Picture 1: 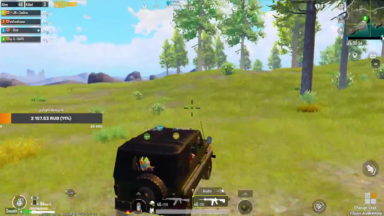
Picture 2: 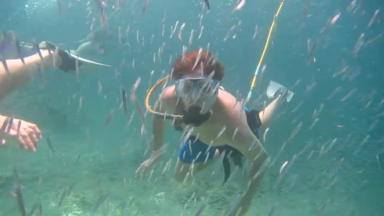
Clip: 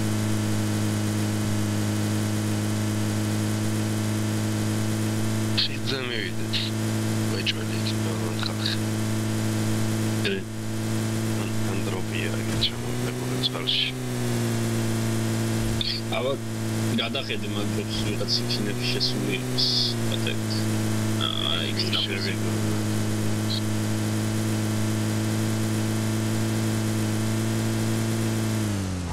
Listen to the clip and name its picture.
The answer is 1